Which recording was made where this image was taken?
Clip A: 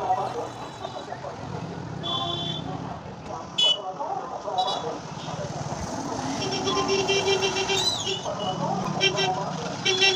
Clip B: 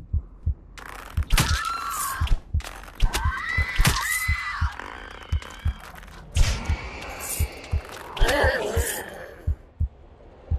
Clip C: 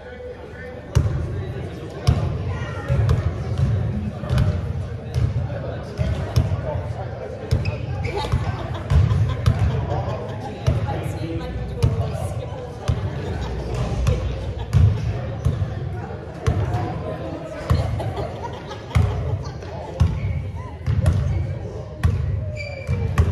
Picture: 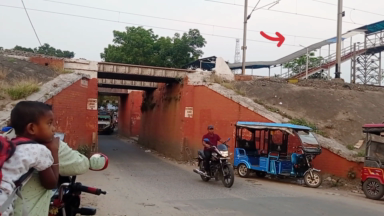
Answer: A